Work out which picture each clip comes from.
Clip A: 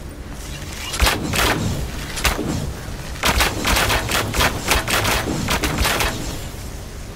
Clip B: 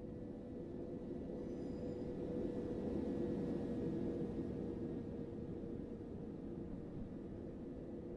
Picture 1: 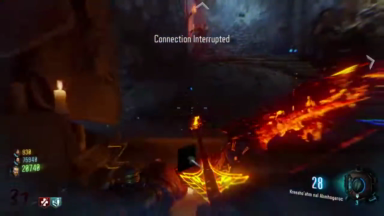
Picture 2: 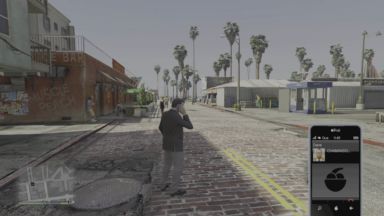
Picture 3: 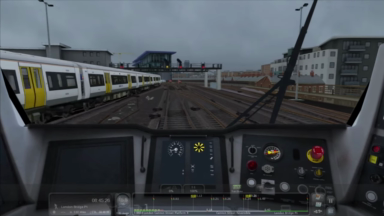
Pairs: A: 1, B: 3